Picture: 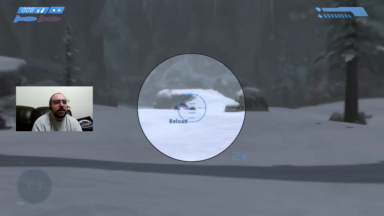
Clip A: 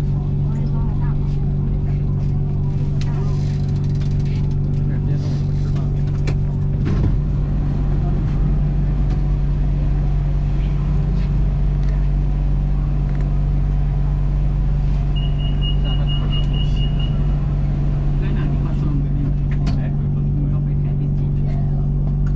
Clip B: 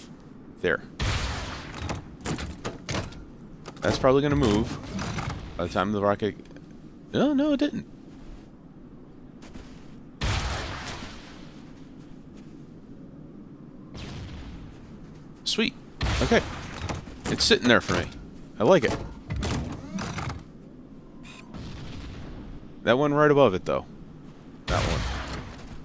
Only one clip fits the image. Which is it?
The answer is B